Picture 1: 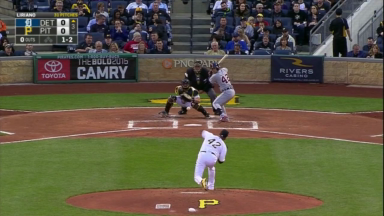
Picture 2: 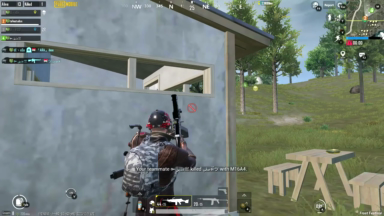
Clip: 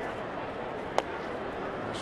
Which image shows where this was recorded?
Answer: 1